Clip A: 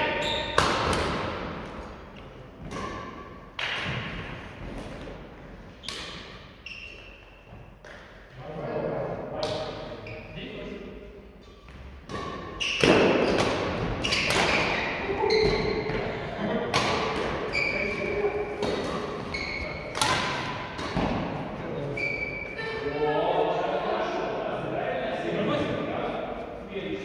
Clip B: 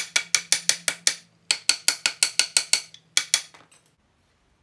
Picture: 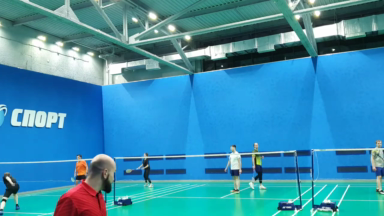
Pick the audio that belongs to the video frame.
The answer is A